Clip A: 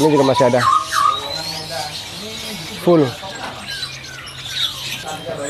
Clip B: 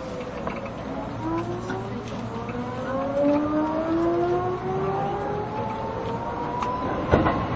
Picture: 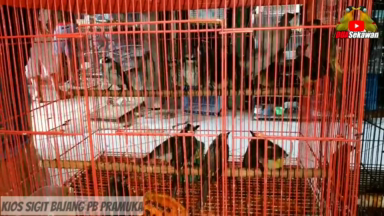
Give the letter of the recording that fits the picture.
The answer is A